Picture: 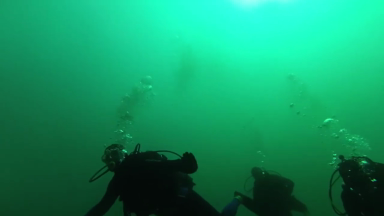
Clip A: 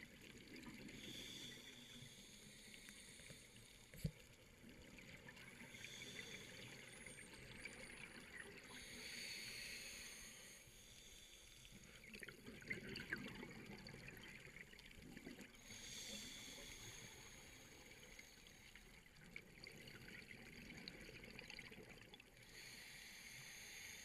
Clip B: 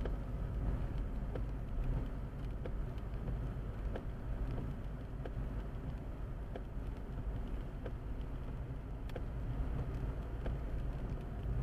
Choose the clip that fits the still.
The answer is A